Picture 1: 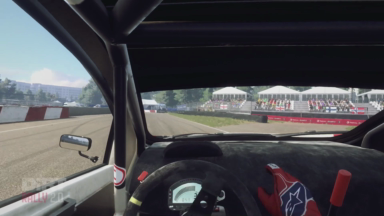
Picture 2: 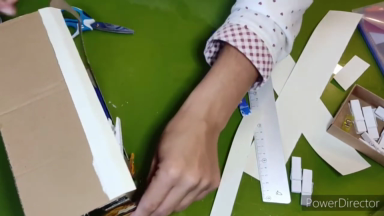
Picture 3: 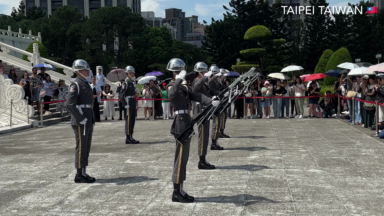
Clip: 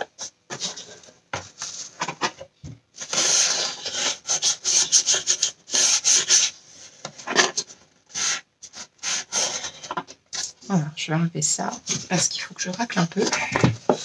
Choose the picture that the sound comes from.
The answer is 2